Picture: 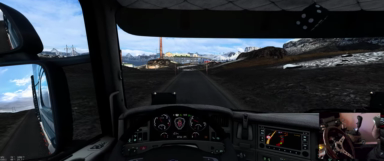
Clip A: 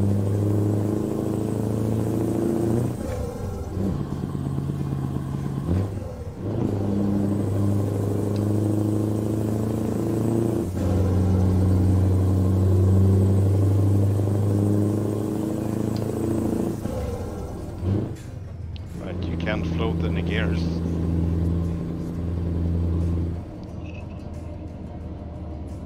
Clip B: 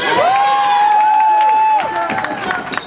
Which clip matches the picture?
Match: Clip A